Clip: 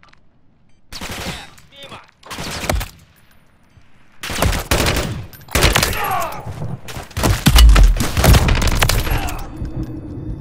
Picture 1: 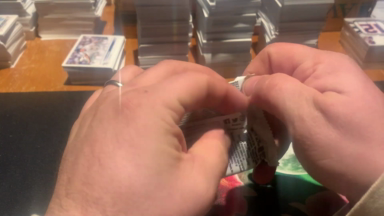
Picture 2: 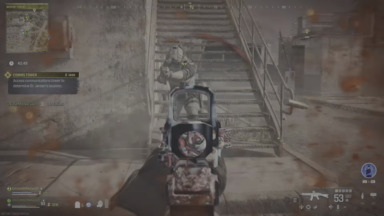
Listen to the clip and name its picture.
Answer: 2